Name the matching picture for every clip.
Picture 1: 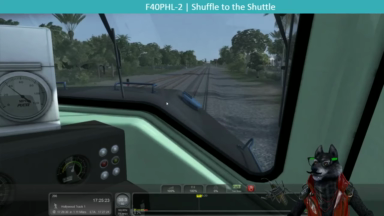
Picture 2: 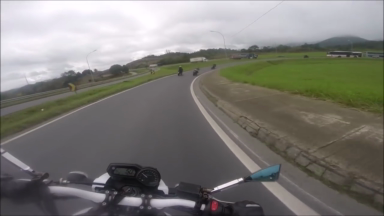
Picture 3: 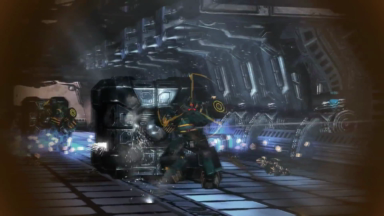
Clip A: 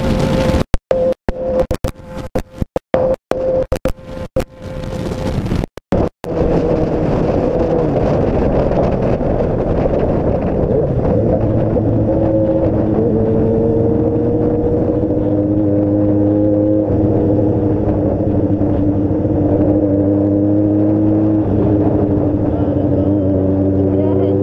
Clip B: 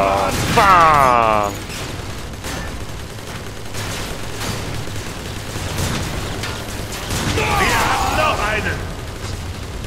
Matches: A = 2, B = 3